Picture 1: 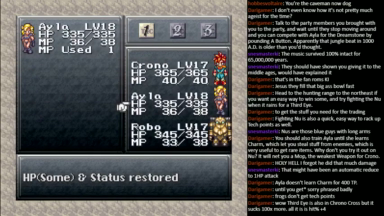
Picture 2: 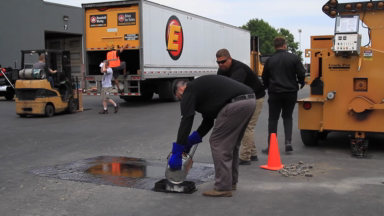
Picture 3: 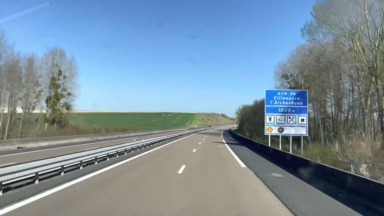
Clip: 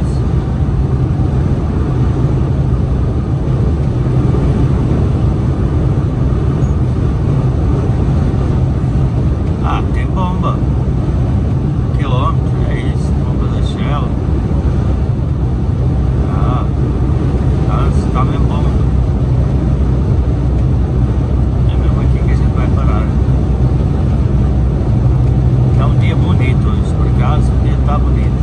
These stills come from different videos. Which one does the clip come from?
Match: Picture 3